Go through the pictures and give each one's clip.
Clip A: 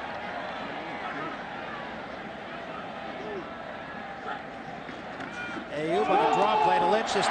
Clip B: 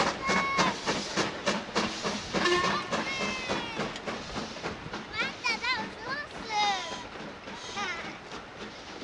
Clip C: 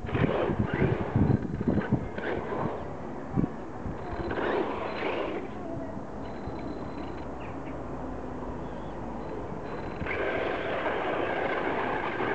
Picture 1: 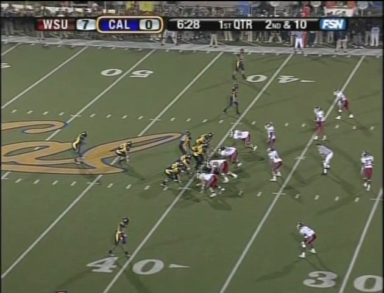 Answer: A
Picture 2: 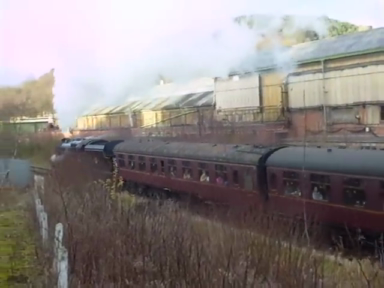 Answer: B